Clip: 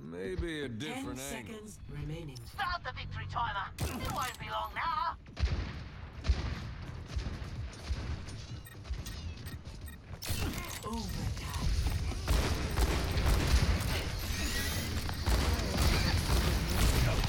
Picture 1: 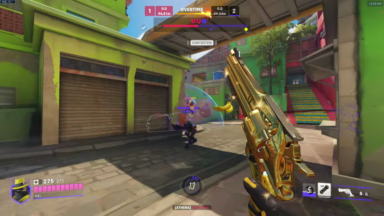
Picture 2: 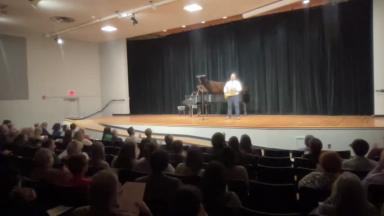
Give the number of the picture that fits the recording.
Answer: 1